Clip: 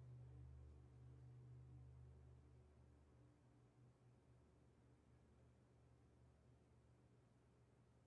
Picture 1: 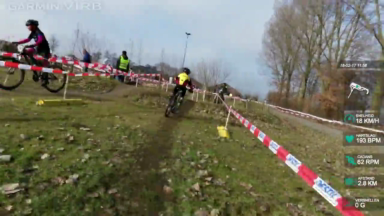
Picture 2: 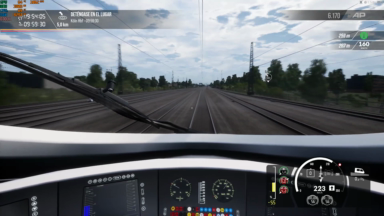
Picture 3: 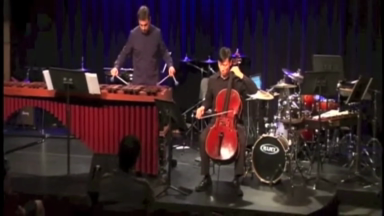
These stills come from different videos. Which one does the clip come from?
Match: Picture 3